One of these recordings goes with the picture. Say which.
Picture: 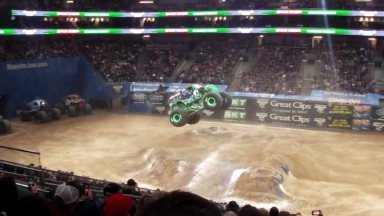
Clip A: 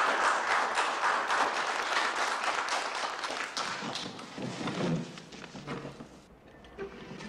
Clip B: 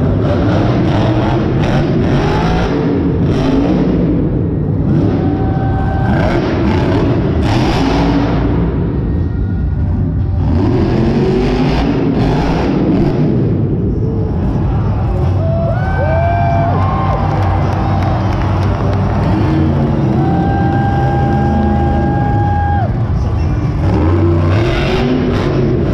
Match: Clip B